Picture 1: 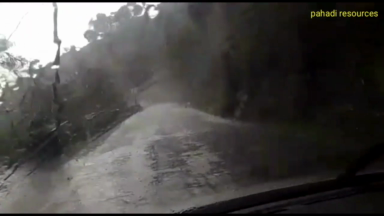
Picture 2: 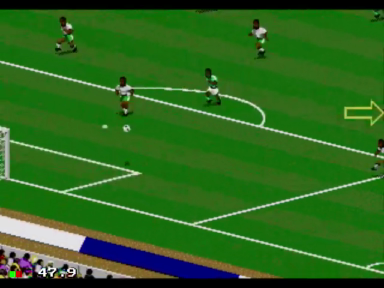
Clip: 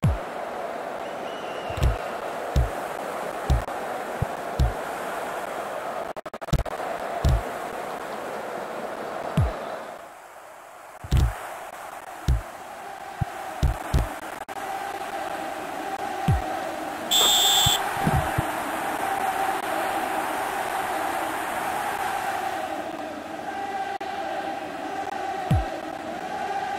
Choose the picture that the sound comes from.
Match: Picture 2